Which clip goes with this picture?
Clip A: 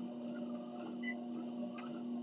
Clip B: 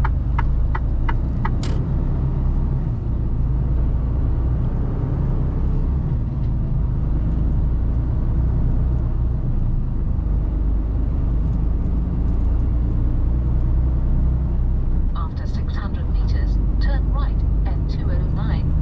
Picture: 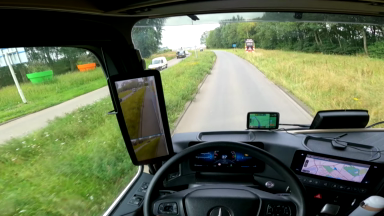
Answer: B